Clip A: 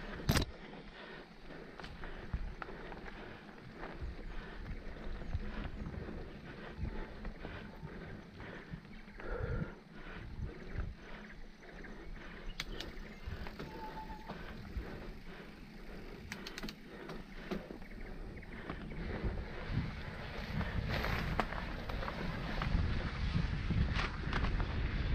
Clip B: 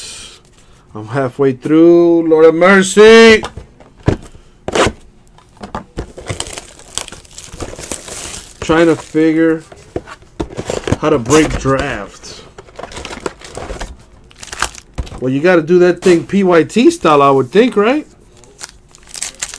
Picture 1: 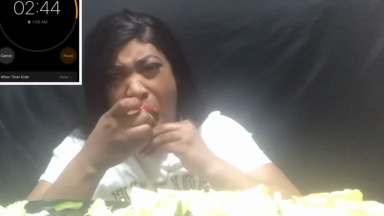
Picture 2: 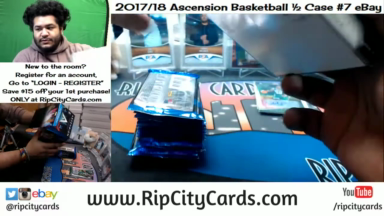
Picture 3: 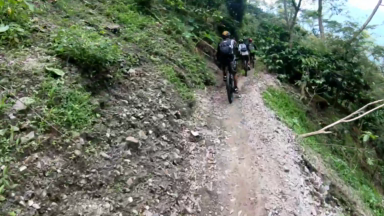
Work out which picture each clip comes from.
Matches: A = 3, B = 2